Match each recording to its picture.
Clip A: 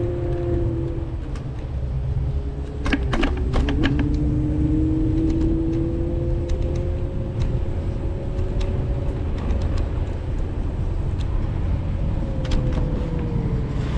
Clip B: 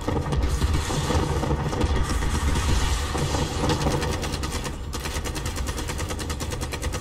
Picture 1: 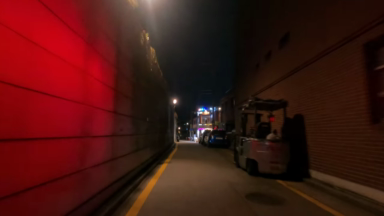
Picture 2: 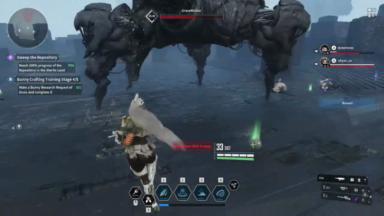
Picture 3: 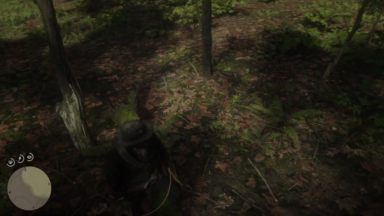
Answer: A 1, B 2